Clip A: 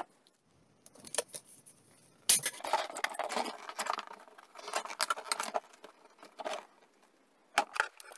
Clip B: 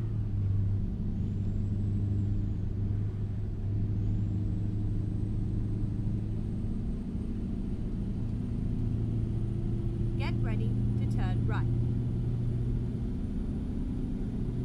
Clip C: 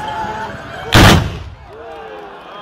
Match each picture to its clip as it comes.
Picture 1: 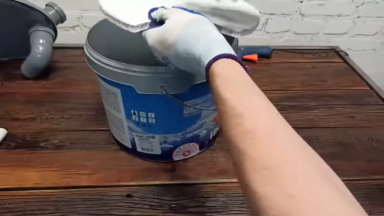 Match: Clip A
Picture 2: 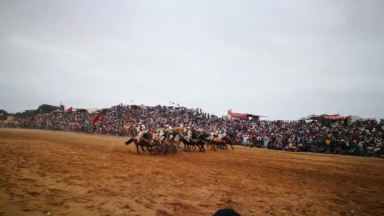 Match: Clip C